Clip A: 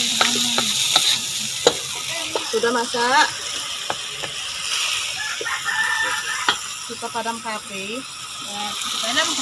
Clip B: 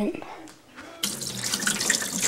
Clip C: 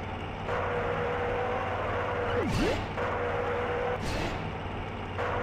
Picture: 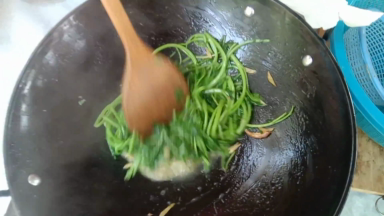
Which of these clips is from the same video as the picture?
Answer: A